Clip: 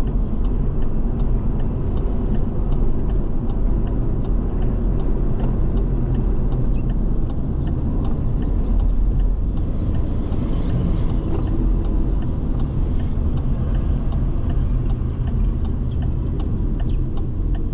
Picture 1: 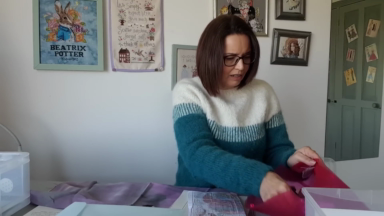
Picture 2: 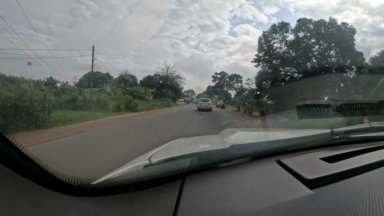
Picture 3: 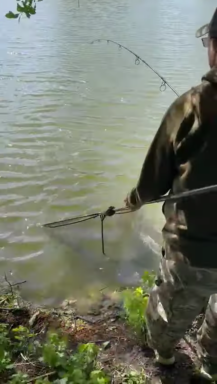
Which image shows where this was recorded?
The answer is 2